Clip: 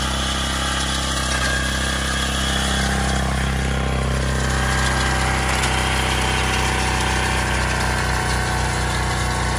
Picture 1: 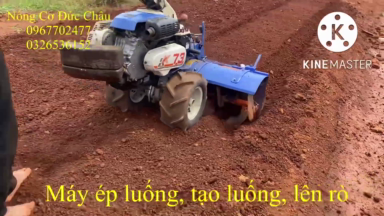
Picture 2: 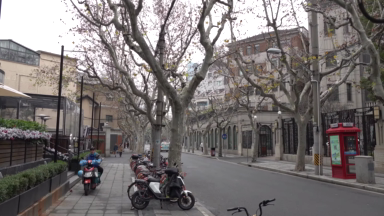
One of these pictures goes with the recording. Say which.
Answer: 1